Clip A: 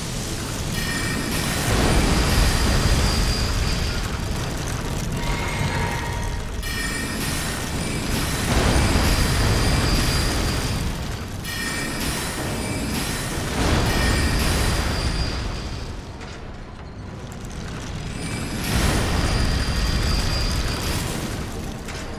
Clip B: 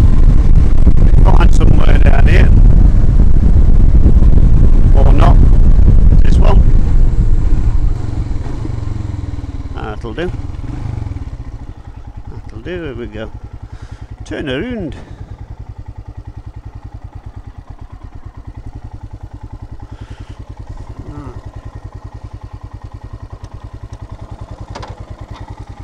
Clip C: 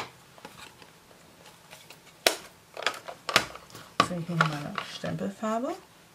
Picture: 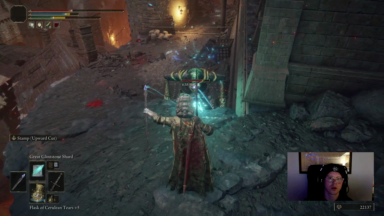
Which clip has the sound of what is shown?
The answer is A